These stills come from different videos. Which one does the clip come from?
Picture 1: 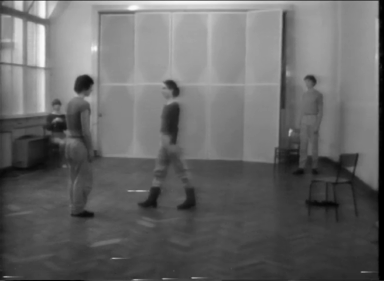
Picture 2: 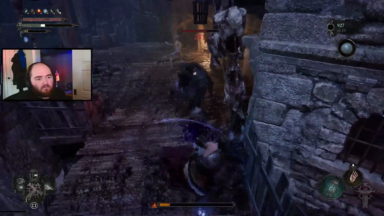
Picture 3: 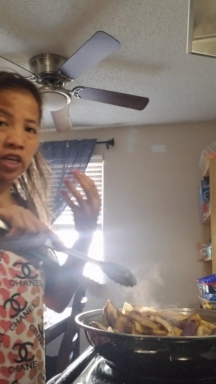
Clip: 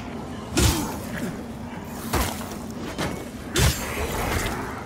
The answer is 2